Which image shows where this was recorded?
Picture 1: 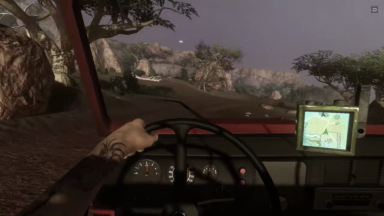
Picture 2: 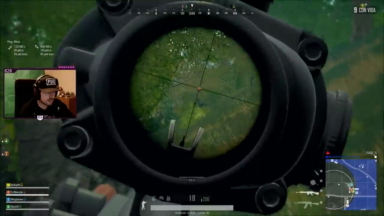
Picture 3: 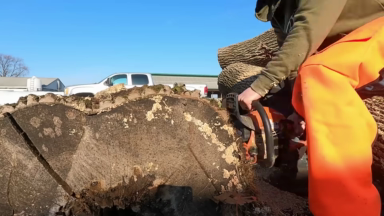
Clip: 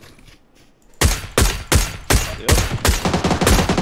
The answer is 2